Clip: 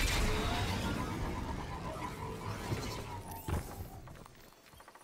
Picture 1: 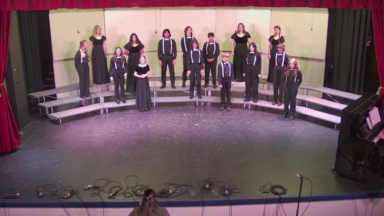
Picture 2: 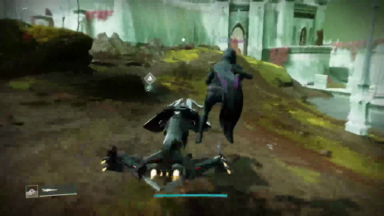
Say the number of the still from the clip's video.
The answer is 2